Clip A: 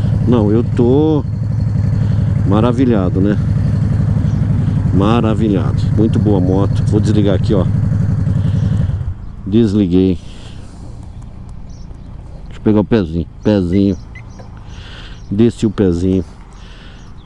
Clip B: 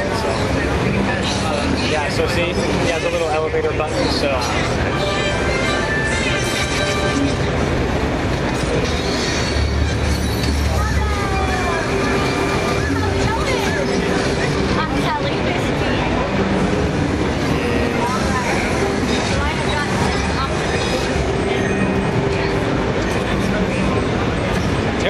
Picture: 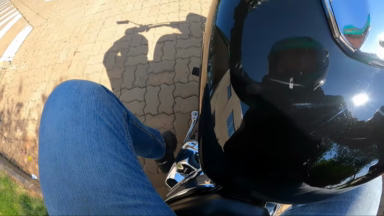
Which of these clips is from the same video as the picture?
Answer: A